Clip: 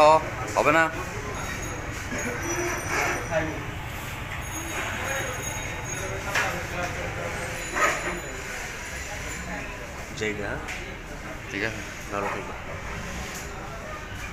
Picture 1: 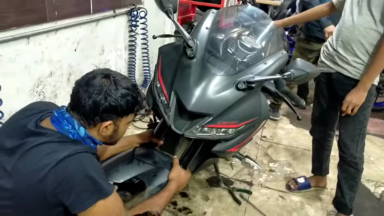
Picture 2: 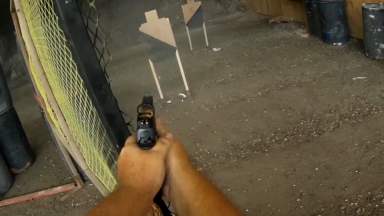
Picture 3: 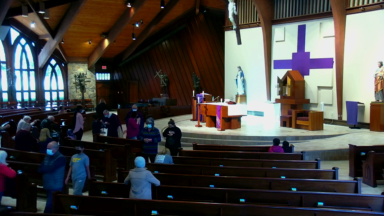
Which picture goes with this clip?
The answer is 1